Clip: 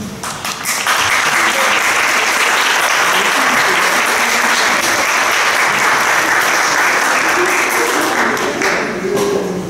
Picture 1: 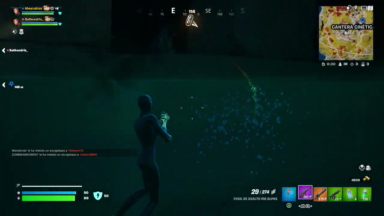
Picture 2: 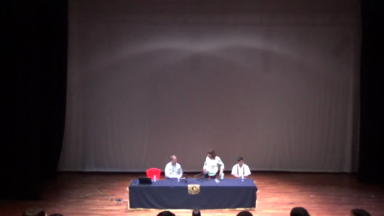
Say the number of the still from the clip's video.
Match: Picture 2